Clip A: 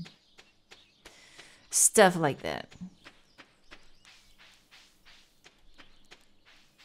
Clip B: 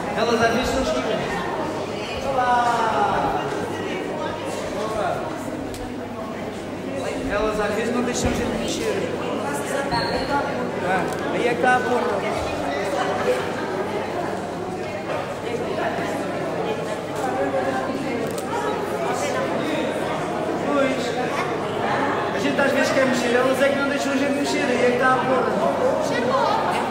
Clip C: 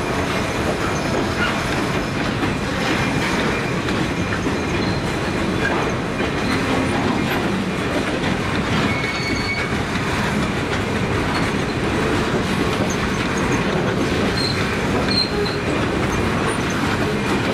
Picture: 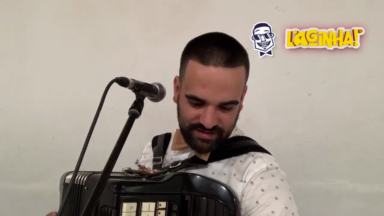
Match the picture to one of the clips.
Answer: B